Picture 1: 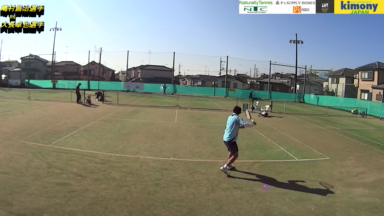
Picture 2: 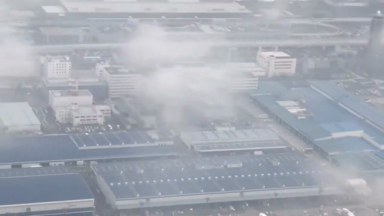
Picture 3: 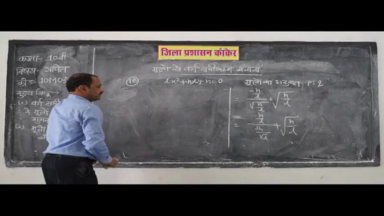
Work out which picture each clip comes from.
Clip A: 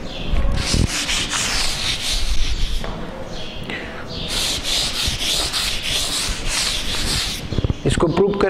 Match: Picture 3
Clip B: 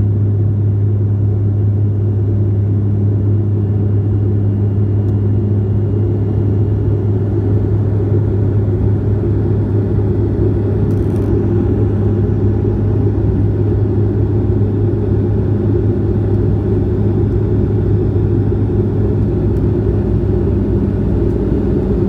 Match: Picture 2